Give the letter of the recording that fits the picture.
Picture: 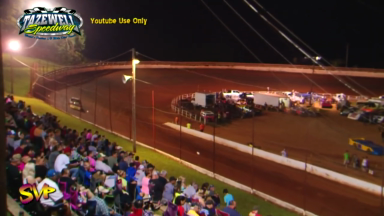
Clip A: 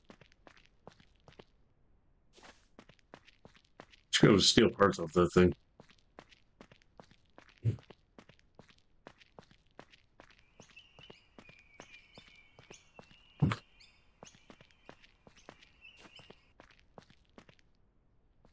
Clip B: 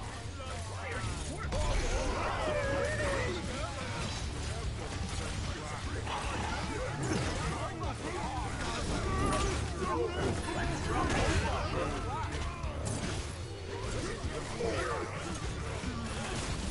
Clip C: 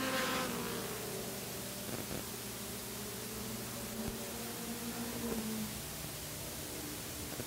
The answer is C